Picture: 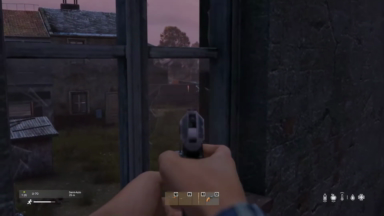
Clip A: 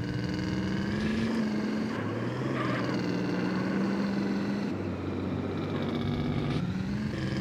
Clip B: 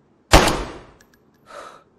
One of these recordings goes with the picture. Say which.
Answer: B